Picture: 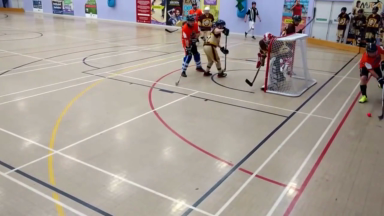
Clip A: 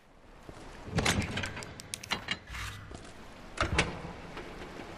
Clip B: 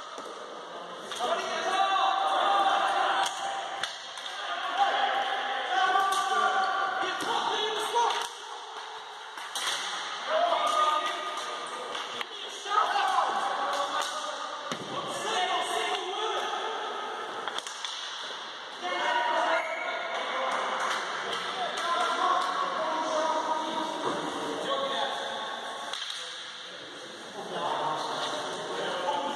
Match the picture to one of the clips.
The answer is B